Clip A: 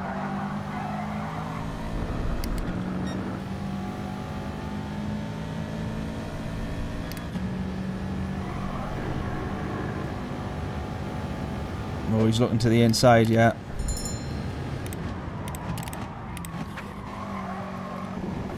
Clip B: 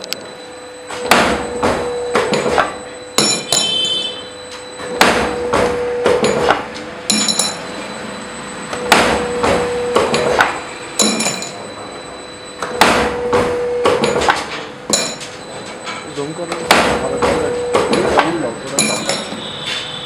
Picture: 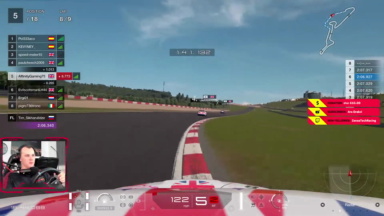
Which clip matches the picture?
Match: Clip A